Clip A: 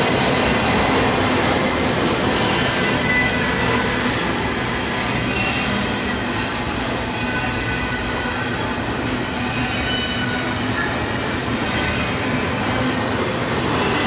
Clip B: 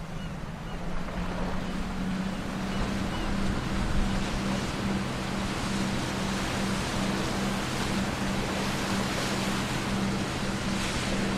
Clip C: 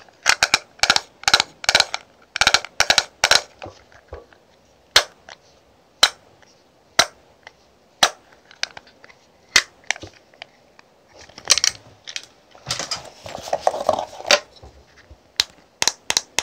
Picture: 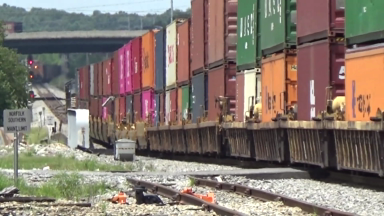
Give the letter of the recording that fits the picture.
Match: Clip A